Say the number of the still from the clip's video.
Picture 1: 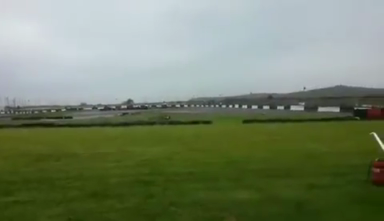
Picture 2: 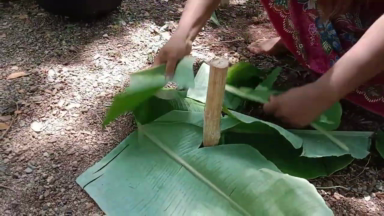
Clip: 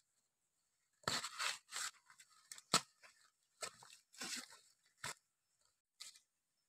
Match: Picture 2